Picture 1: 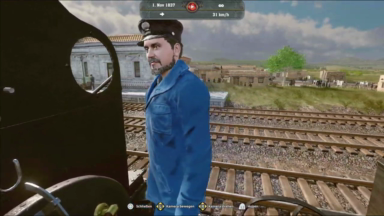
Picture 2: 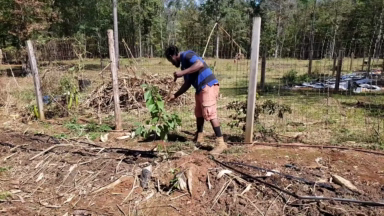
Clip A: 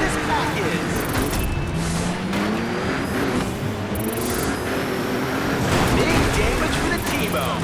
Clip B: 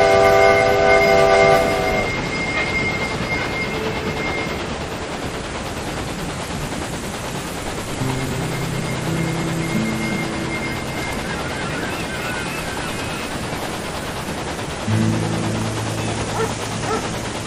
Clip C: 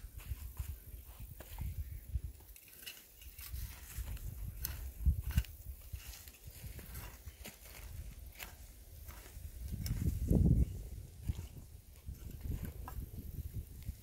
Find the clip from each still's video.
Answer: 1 B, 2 C